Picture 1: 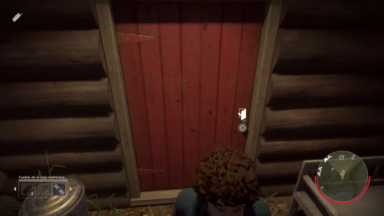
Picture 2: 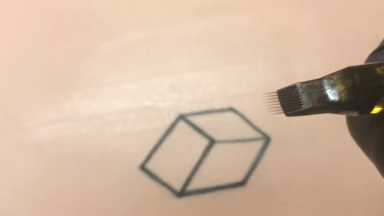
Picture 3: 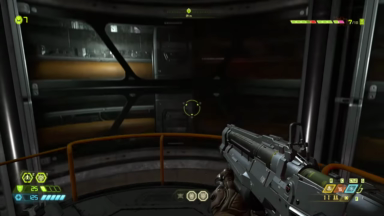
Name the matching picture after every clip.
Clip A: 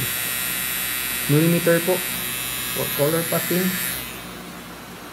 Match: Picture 2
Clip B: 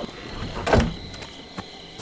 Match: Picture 1